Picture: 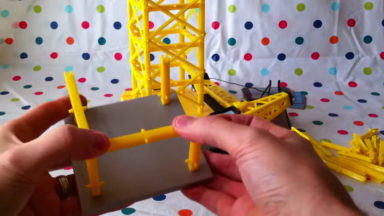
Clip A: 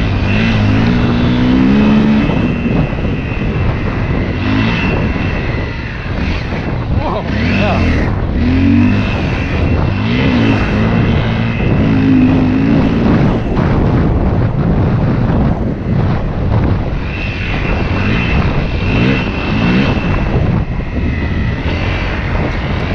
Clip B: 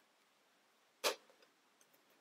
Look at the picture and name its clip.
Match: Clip B